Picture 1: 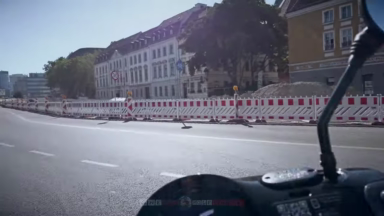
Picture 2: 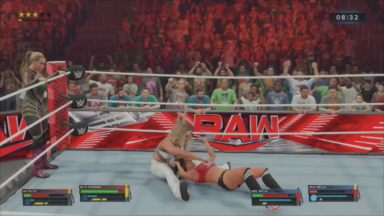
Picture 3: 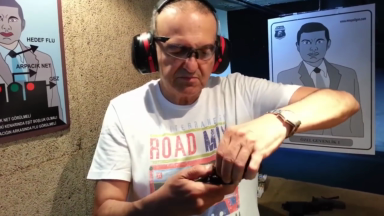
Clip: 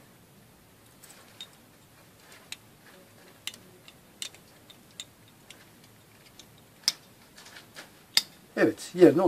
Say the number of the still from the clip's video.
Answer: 3